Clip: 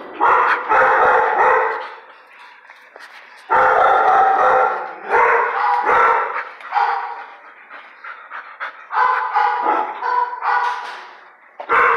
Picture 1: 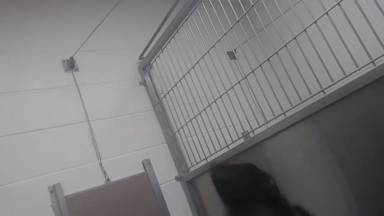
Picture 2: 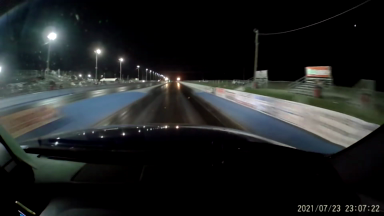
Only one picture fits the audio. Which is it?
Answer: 1